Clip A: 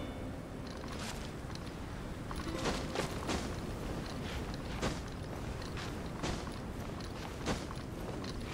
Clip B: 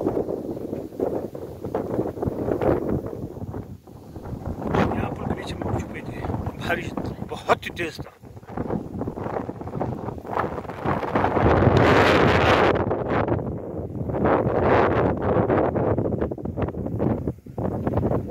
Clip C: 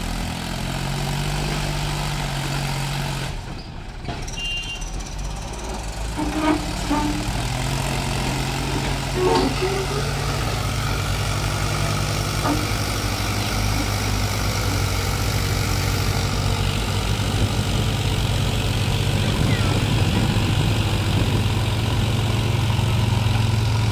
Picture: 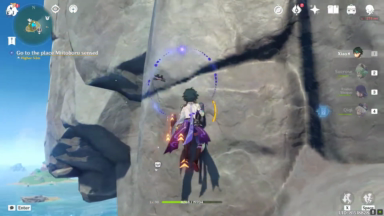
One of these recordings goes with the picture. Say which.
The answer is A